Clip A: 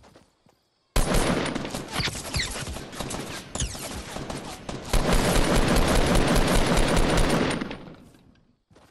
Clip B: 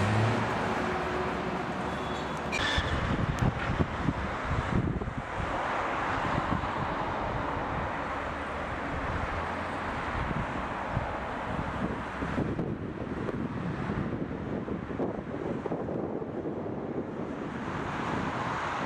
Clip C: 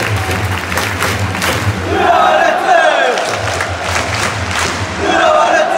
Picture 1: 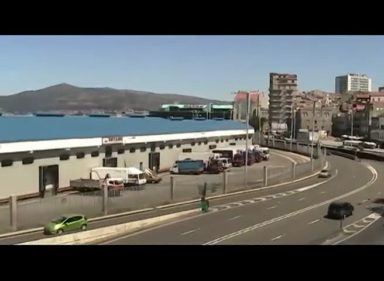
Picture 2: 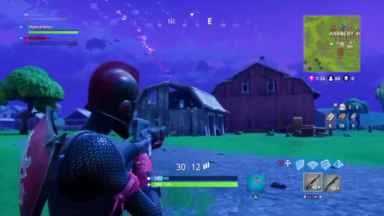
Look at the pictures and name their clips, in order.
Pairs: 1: B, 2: A